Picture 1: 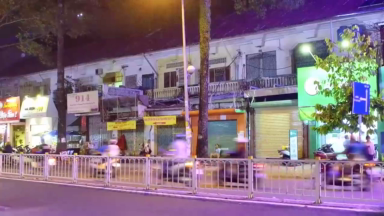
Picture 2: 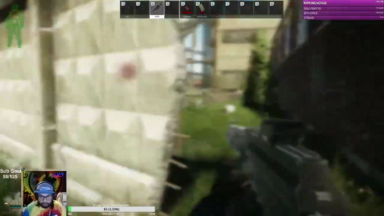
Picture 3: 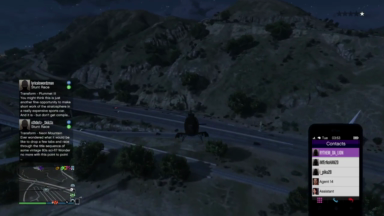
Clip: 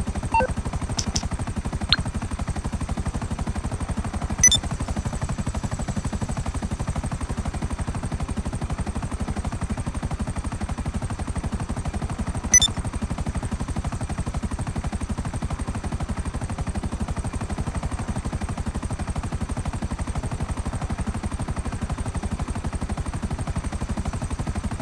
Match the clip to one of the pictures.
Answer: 3